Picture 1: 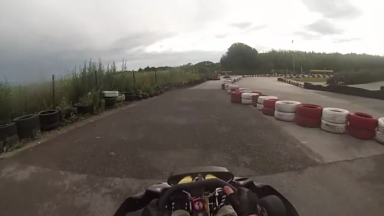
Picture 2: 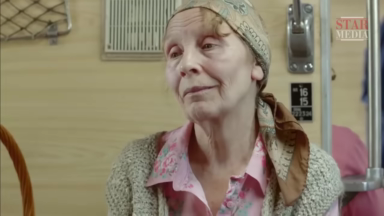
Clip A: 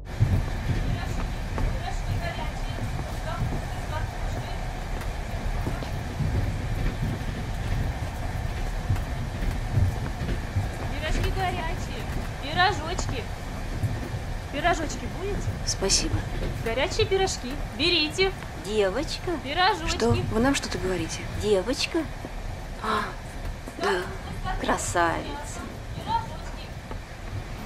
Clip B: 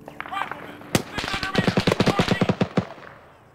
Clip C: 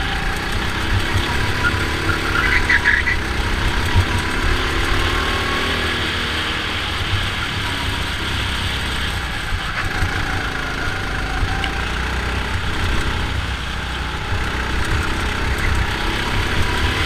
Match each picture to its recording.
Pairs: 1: C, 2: A